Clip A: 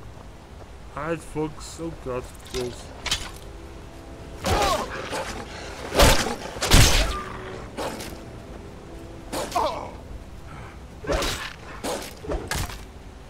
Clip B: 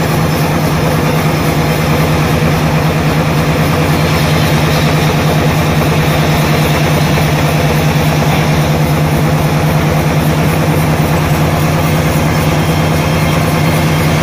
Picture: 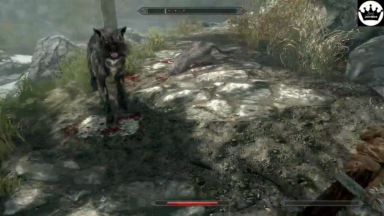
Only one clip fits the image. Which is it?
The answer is A